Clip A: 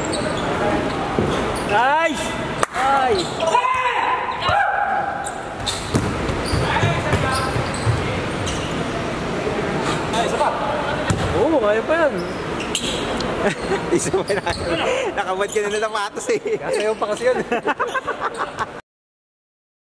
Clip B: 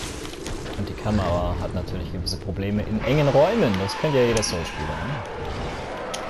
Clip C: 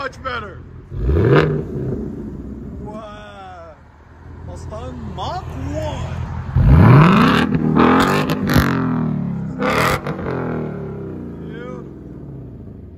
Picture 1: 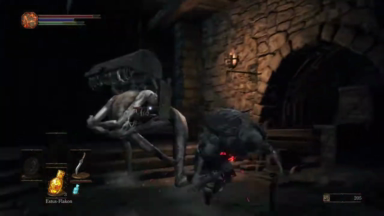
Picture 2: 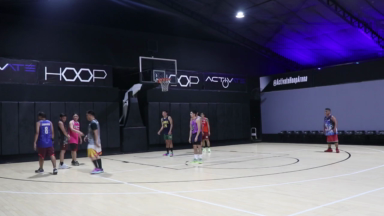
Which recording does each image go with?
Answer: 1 B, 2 A